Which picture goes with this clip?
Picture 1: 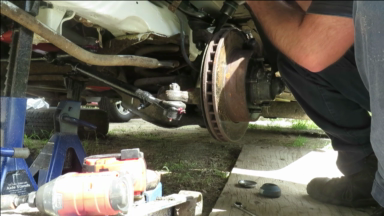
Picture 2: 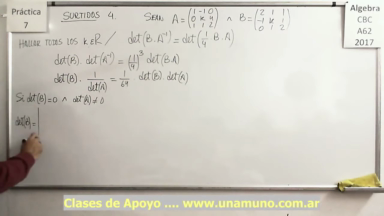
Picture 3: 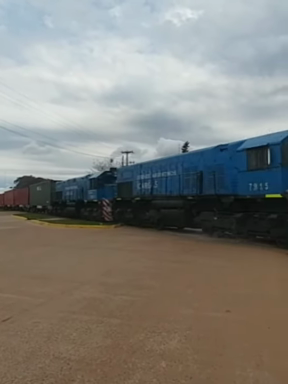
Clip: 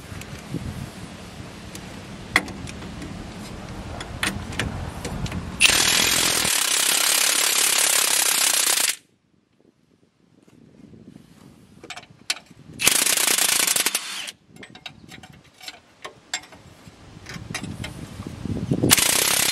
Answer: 1